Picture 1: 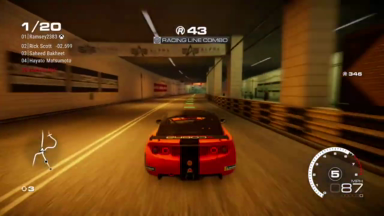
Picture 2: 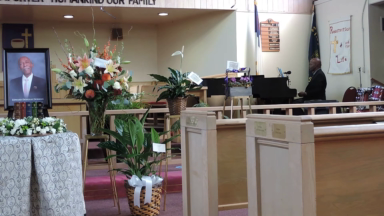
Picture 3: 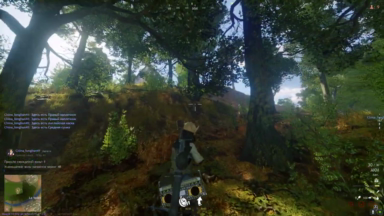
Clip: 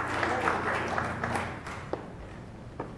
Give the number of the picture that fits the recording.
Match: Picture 2